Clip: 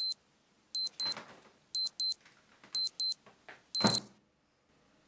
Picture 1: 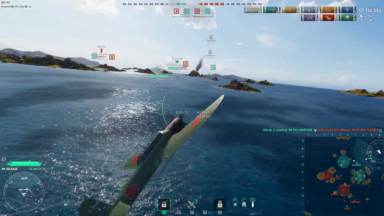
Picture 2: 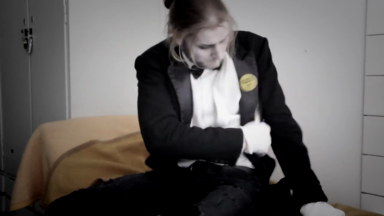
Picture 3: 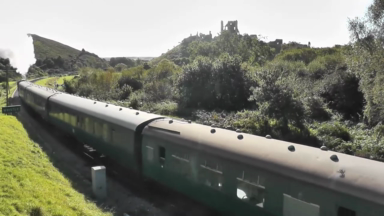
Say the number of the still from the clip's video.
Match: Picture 2